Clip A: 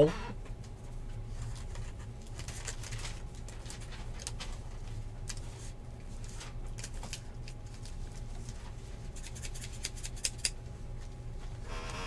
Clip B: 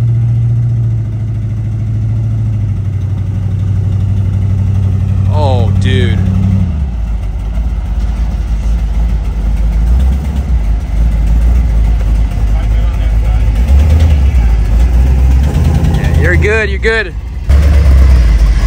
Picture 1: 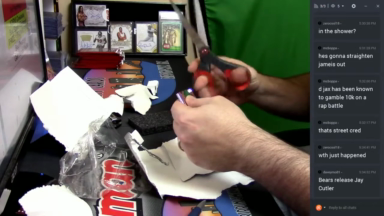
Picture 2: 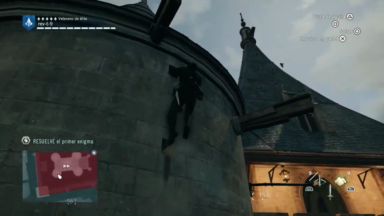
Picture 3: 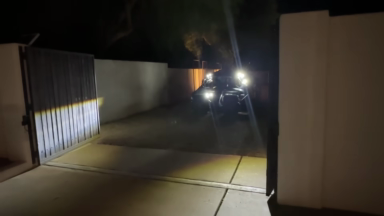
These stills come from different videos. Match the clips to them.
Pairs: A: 1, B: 3